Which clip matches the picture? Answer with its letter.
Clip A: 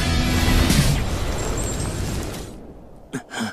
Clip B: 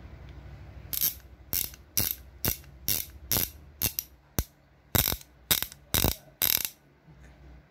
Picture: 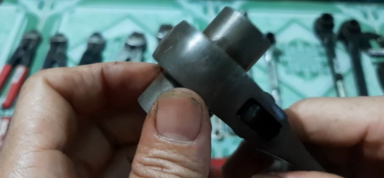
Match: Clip B